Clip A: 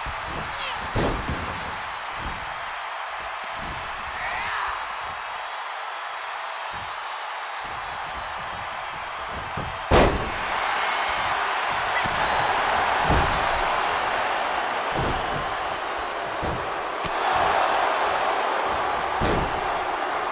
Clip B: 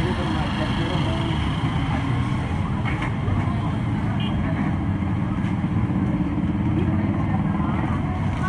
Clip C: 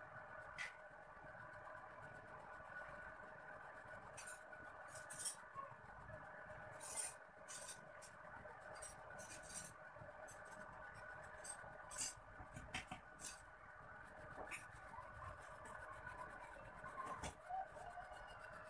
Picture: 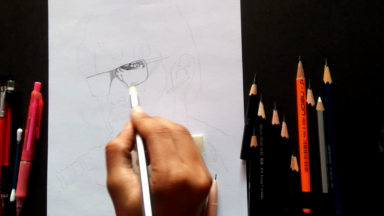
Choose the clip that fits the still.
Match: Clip C